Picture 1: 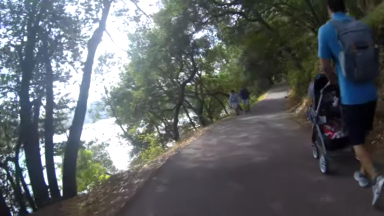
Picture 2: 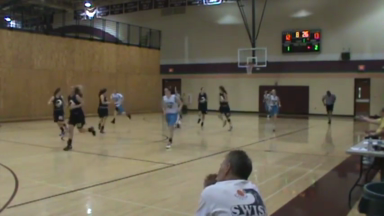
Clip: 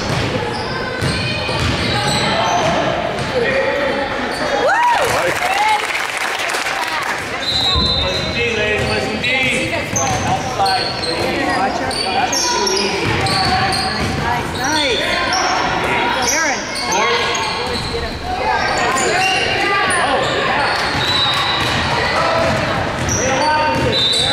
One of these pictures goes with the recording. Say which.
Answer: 2